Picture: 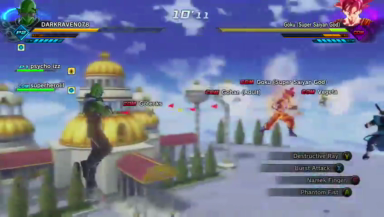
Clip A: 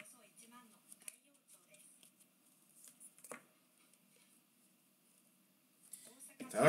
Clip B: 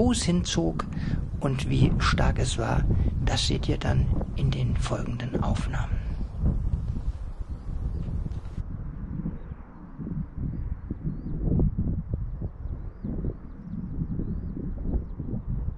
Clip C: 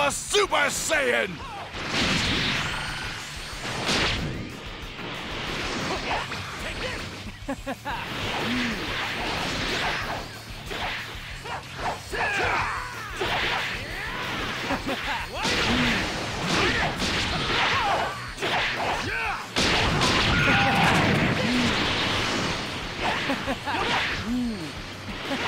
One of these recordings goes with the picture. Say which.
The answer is C